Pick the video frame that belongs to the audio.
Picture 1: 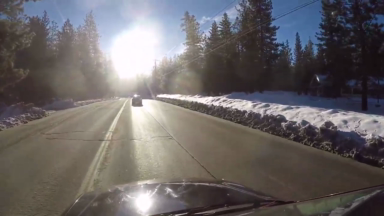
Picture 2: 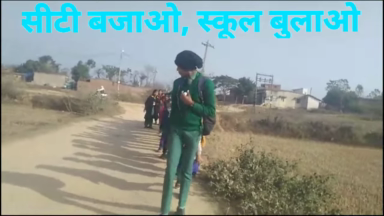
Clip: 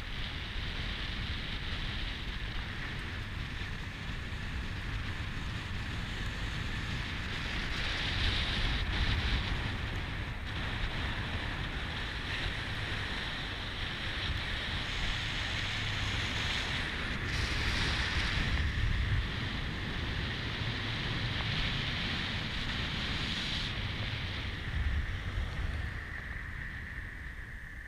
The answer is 1